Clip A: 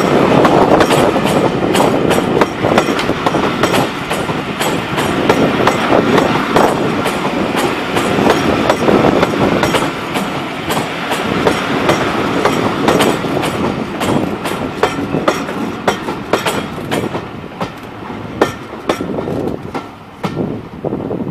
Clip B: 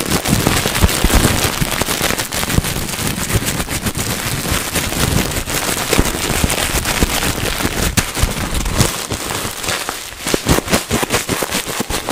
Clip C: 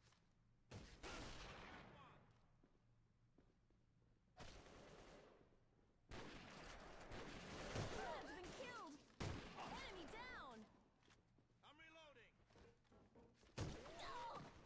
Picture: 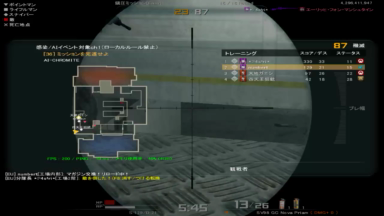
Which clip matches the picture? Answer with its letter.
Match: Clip C